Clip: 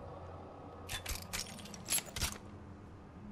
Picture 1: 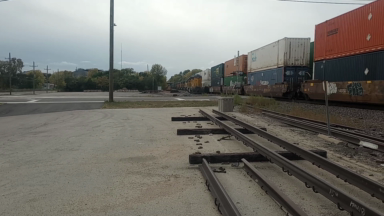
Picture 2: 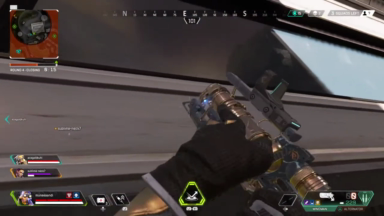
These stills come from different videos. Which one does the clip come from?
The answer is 2